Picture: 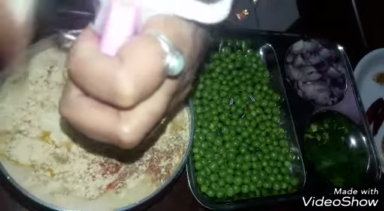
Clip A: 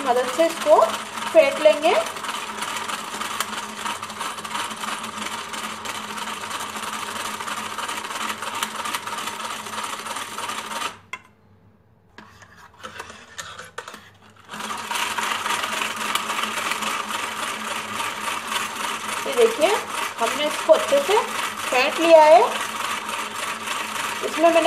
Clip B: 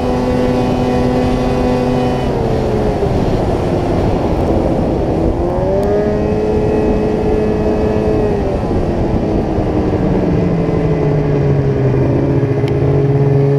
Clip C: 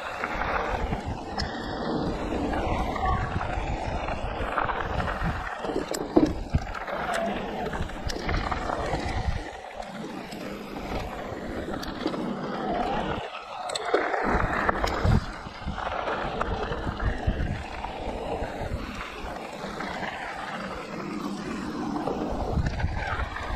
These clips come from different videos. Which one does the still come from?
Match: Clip A